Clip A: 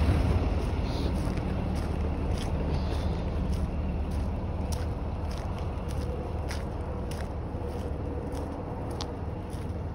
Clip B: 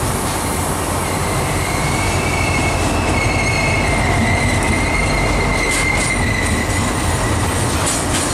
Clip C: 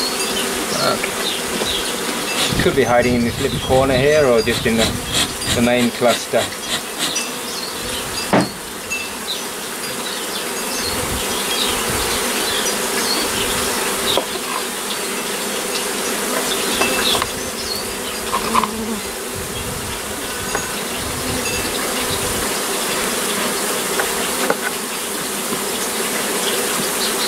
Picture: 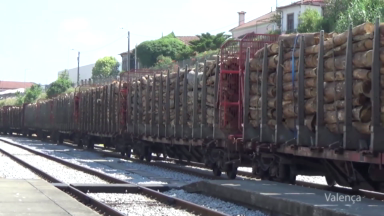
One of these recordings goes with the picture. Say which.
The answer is B